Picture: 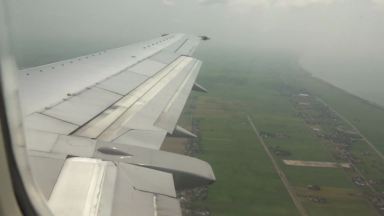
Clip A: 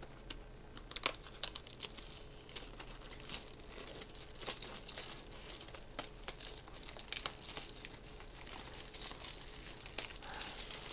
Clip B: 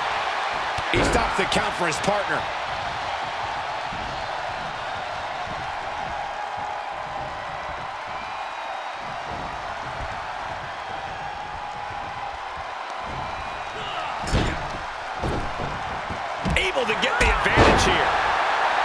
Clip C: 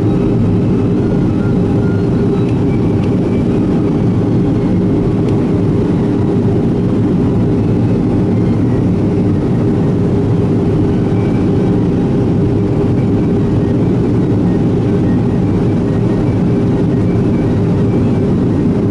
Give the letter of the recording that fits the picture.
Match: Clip C